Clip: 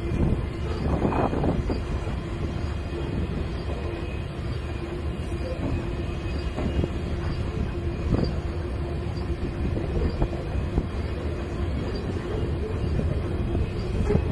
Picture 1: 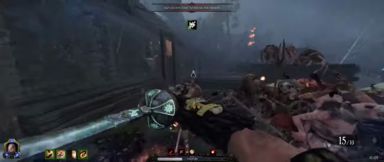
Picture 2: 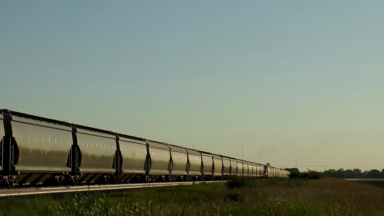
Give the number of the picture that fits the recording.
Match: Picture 2